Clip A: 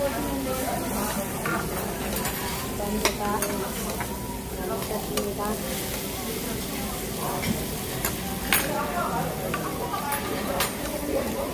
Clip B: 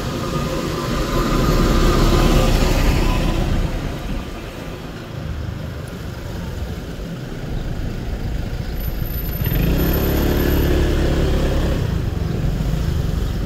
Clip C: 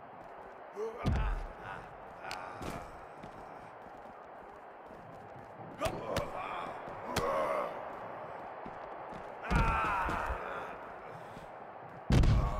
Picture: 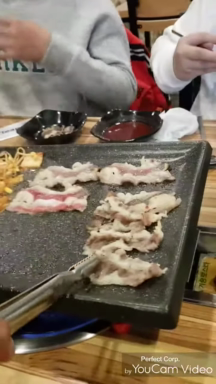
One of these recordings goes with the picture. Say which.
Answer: A